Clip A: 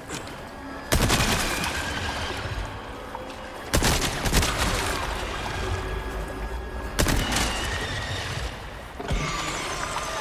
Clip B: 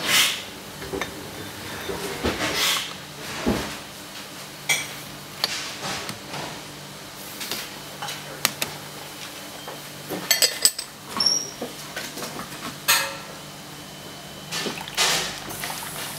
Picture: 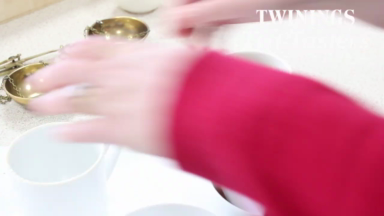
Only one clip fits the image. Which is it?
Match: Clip B